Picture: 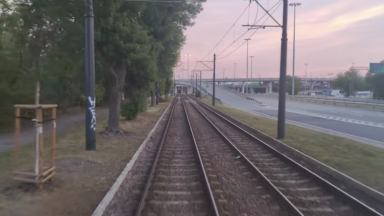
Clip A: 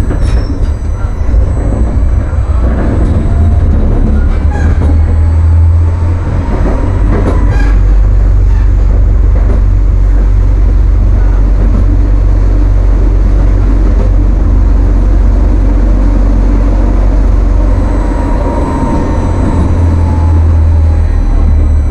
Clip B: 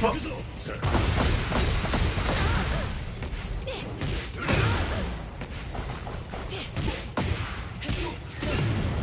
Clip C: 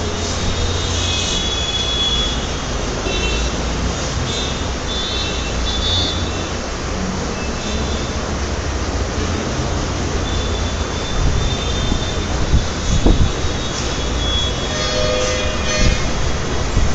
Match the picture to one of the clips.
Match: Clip A